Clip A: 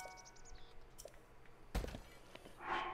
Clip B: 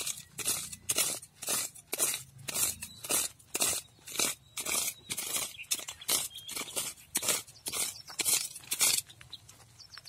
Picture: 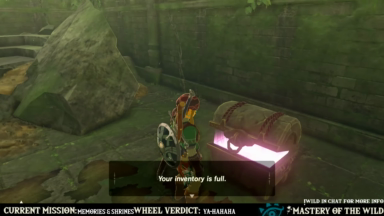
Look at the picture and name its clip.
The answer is A